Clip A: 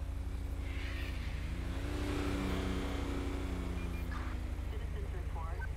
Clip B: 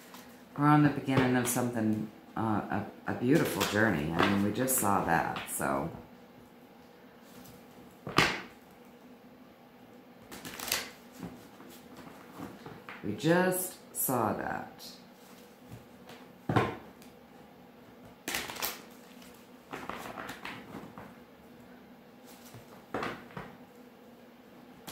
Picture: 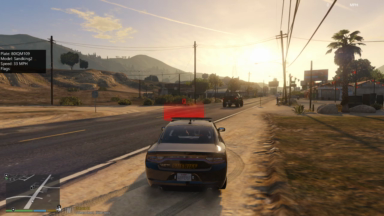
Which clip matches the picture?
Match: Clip A